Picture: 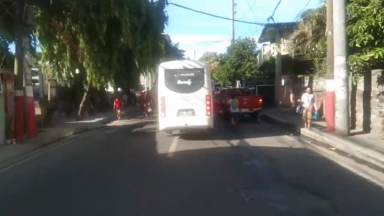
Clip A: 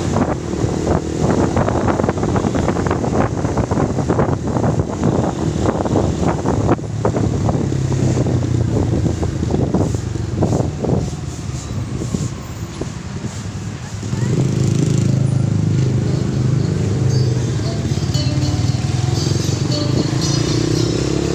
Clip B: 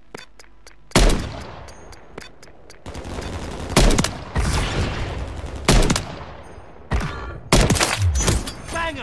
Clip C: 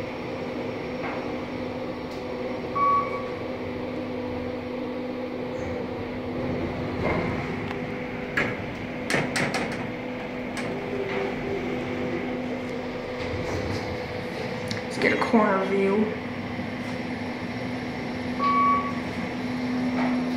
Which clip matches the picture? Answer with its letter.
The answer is A